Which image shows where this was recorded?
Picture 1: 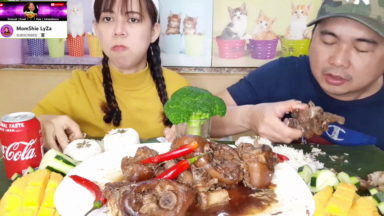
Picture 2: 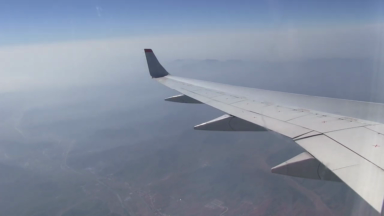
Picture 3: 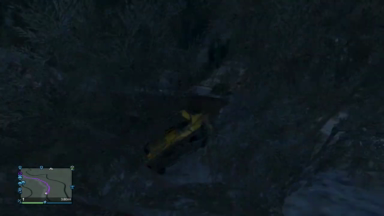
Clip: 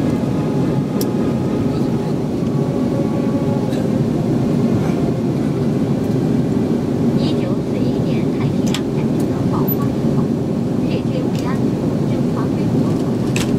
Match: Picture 2